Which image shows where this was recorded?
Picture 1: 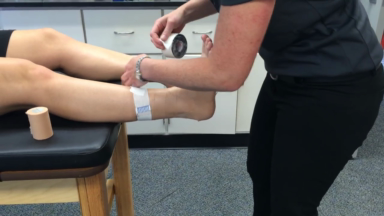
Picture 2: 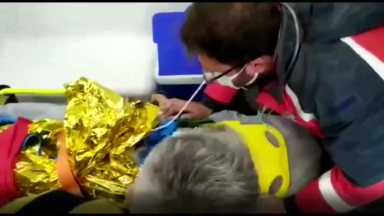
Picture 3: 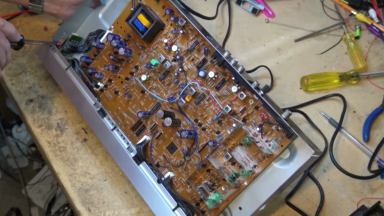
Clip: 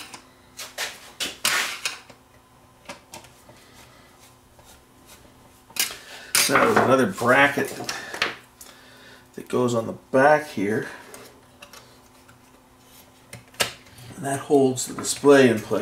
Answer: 3